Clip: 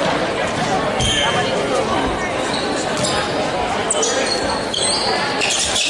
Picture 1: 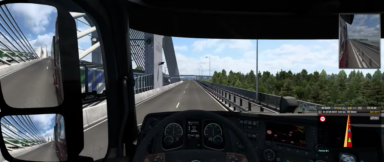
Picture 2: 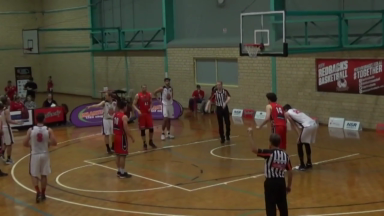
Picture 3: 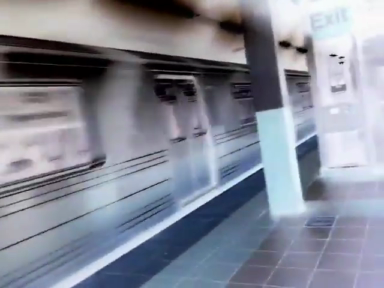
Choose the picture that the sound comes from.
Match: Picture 2